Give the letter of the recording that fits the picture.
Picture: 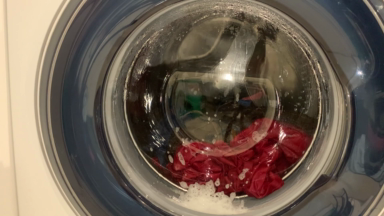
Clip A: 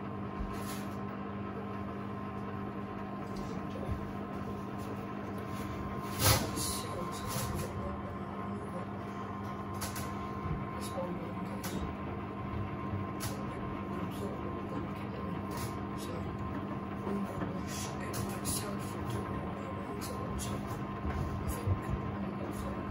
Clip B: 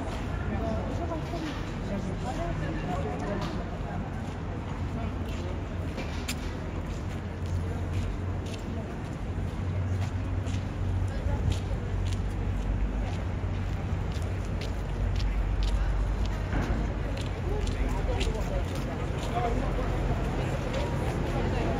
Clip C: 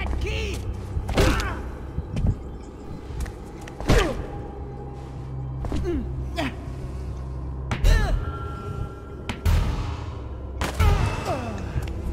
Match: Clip A